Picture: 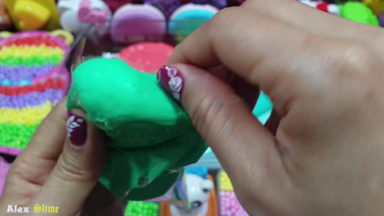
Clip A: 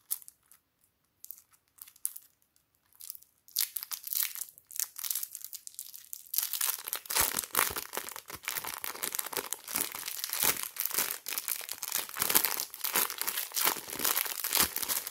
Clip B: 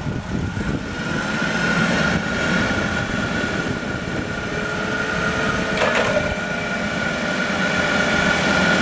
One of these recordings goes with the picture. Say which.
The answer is A